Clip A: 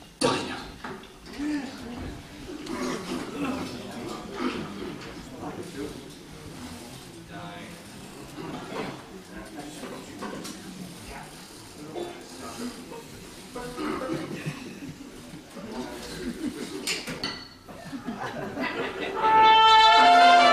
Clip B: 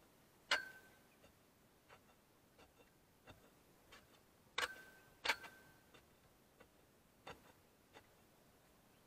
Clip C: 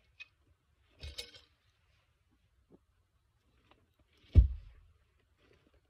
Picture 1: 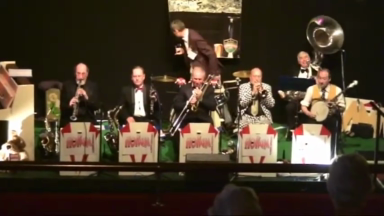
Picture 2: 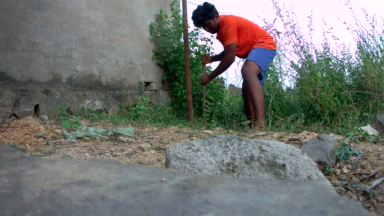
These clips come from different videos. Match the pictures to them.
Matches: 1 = A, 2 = B